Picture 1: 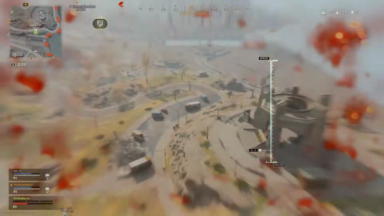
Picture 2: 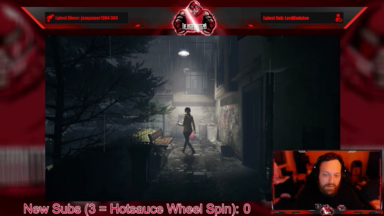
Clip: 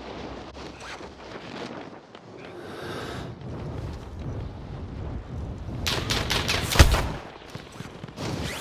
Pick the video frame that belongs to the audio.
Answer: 1